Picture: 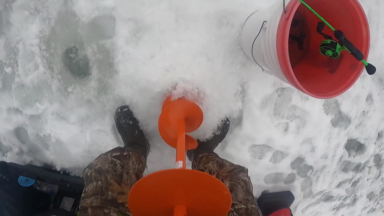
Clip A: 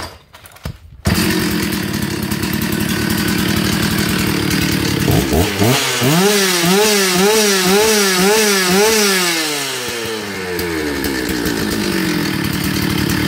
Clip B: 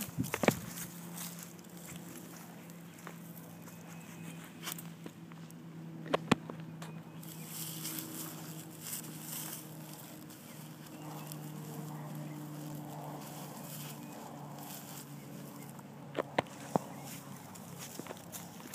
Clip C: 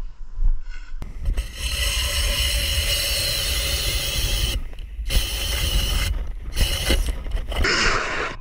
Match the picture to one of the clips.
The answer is C